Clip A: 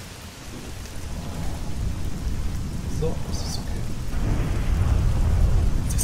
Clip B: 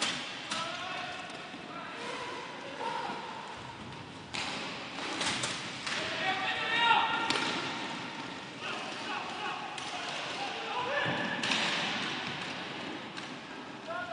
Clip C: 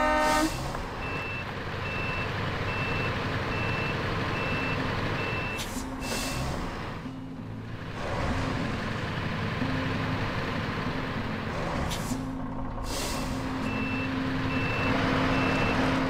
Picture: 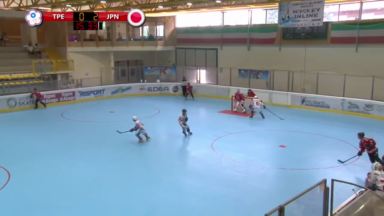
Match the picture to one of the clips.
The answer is B